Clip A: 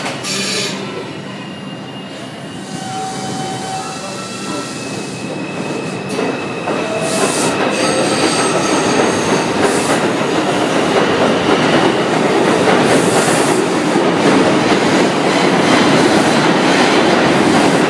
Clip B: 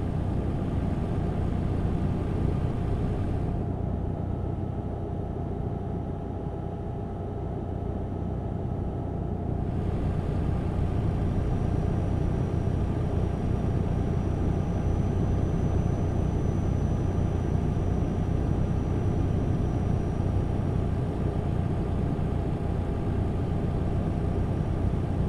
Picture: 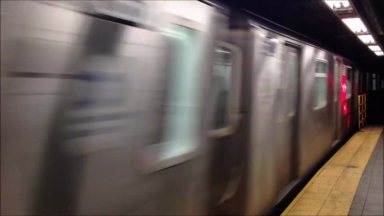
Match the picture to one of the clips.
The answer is A